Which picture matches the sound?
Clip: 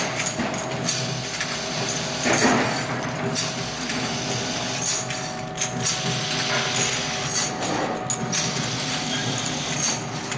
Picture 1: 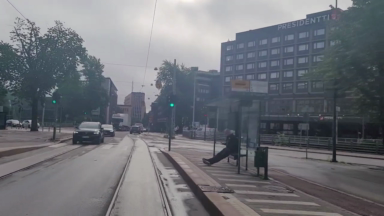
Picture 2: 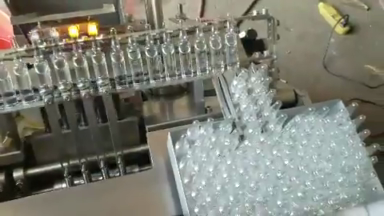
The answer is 2